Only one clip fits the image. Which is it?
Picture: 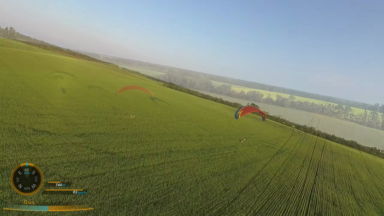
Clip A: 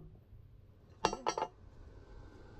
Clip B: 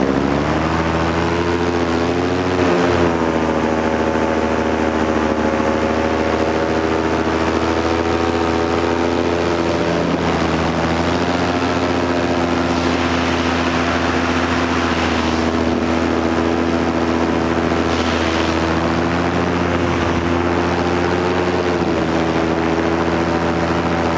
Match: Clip B